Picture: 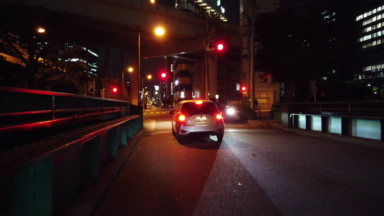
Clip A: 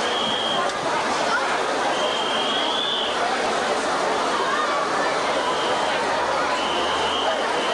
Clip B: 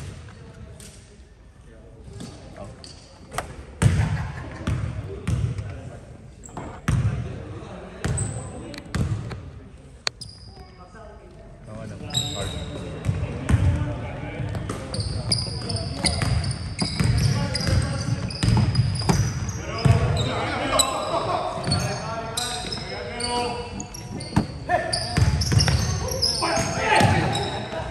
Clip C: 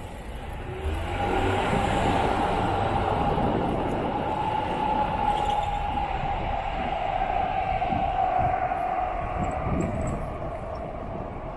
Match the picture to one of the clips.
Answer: C